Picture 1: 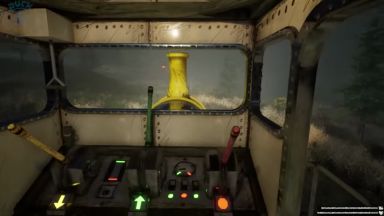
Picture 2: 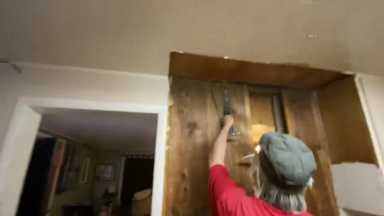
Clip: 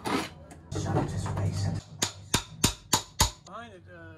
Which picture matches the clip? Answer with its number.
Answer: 2